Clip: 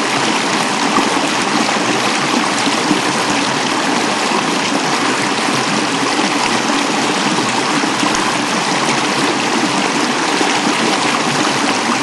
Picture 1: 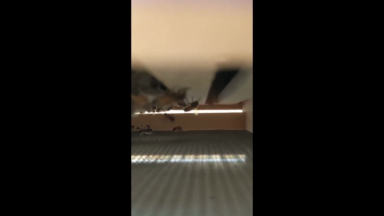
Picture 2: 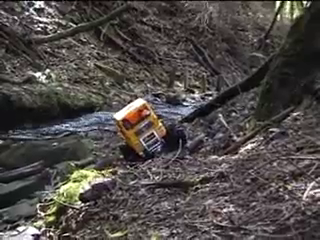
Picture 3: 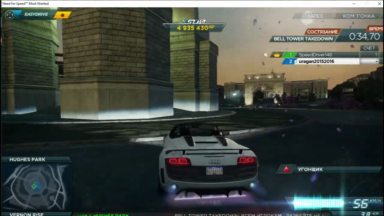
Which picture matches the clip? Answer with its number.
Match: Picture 2